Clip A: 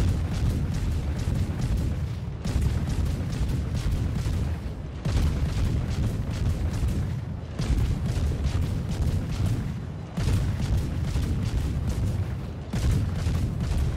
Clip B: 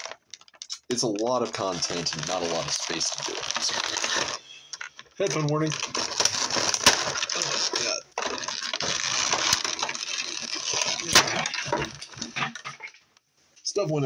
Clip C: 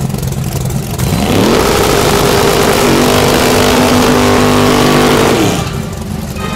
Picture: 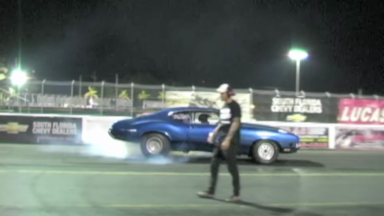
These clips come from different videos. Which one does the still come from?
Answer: C